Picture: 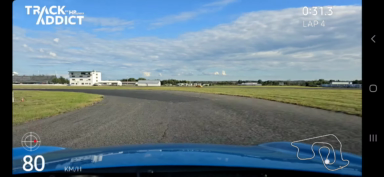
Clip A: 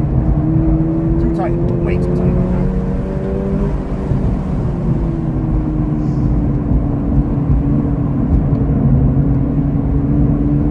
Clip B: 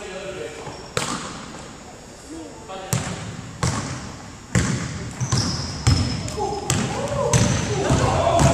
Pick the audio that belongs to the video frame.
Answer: A